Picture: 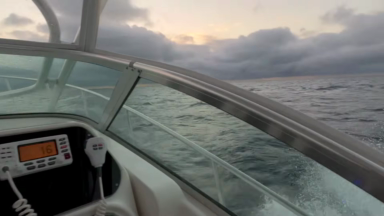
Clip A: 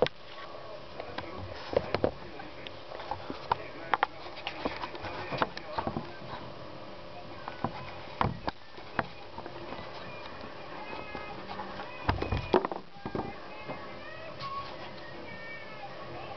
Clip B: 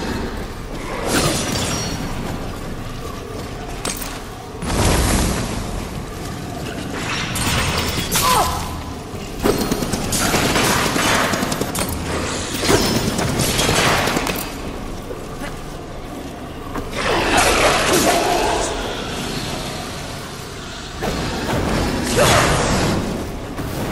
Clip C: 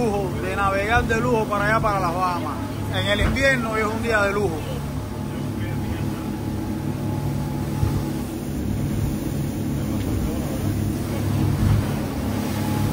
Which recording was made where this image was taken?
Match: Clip C